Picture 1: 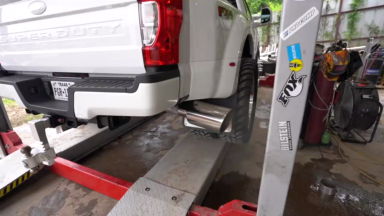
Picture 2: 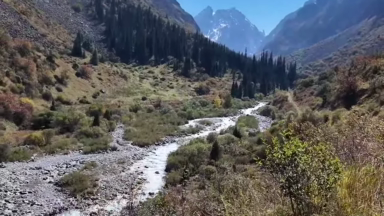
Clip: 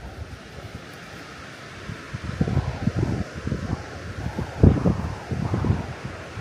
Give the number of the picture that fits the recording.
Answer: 2